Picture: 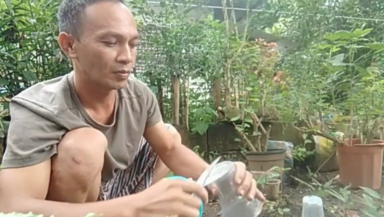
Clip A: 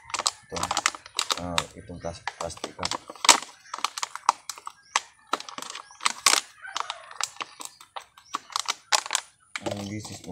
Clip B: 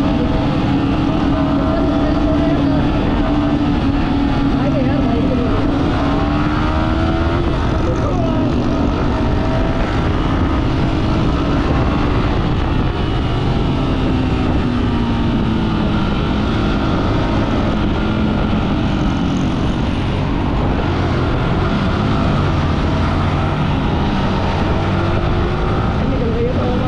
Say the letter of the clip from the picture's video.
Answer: A